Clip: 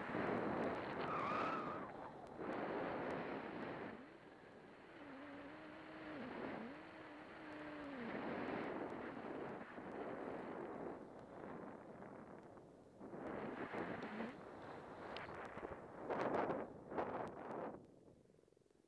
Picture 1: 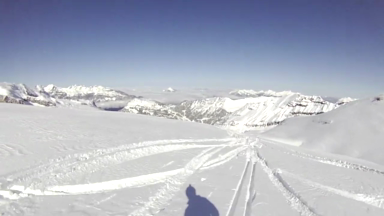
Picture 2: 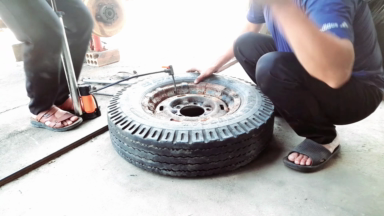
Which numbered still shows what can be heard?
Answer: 1